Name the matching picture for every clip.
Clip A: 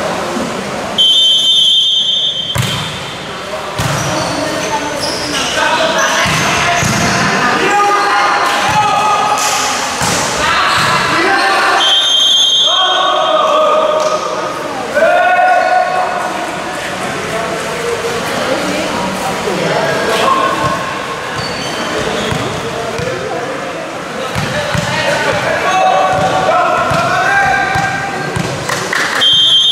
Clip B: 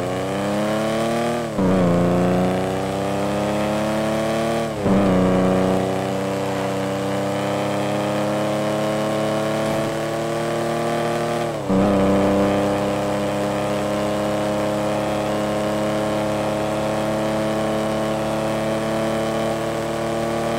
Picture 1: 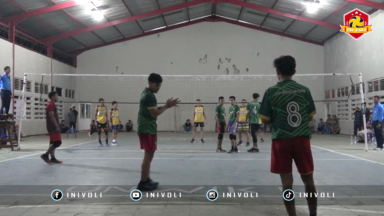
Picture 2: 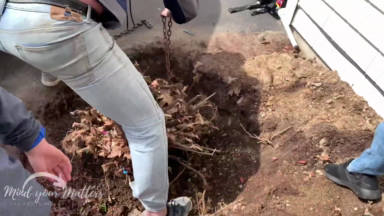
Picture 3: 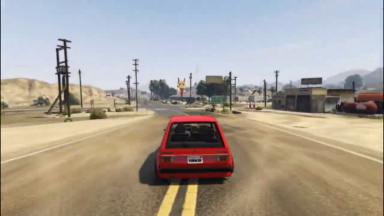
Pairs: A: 1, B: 3